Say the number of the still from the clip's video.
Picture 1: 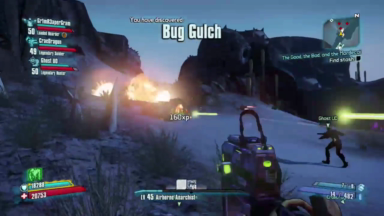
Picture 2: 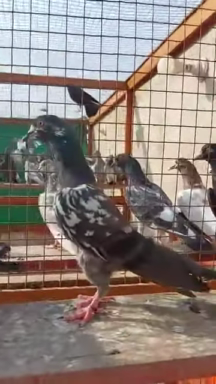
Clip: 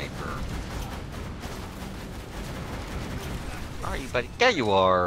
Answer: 1